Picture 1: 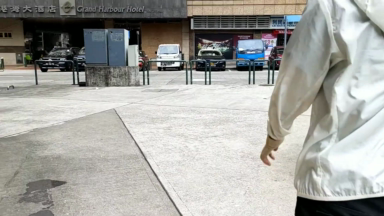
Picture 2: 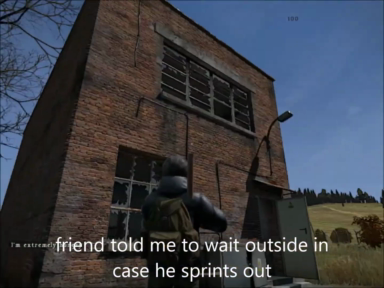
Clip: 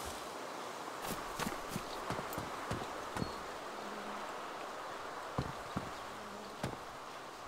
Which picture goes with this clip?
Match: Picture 2